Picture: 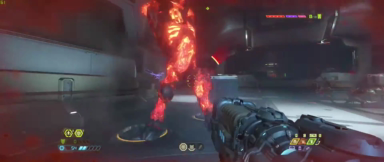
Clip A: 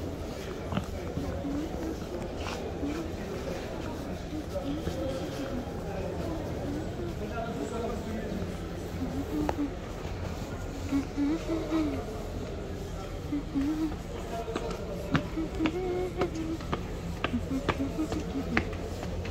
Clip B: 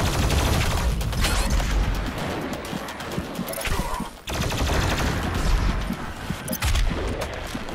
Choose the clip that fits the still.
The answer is B